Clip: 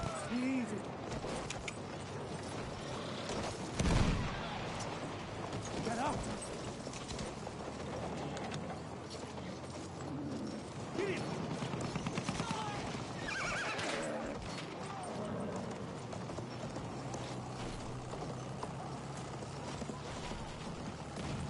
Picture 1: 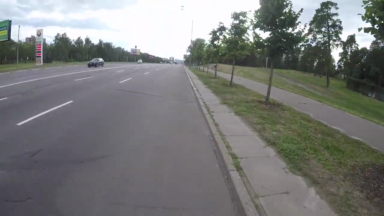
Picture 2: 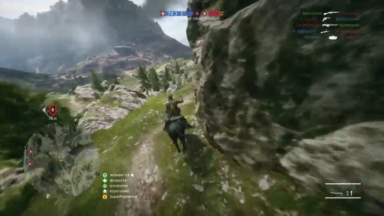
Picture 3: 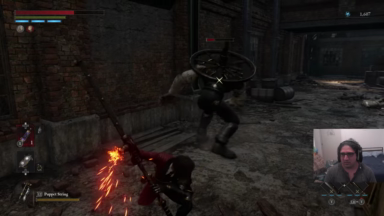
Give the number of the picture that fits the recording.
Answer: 2